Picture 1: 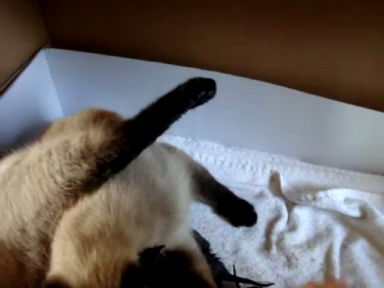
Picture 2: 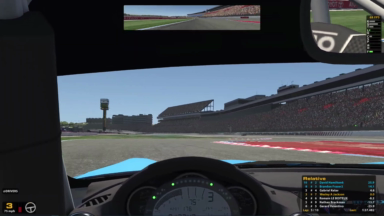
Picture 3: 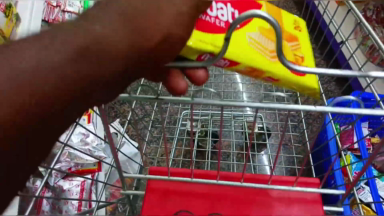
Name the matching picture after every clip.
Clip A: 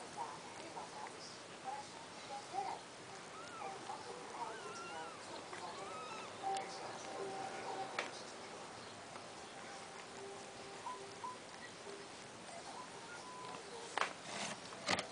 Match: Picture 1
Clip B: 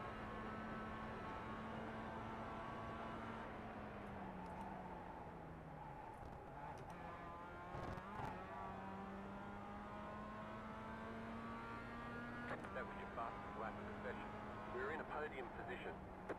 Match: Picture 2